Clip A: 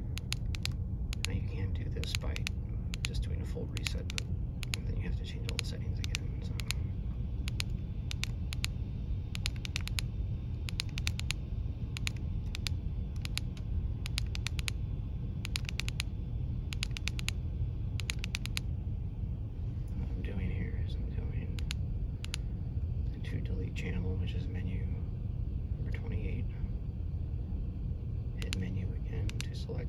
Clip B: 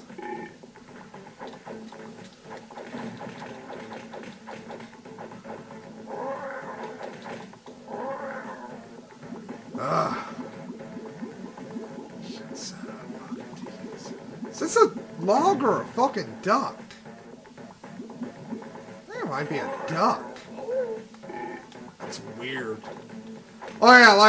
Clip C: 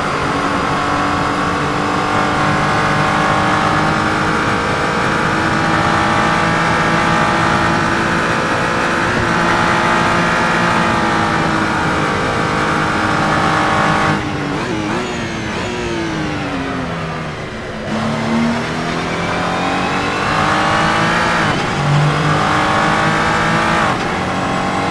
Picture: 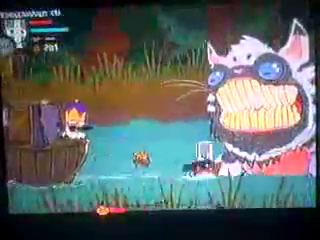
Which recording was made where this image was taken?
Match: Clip B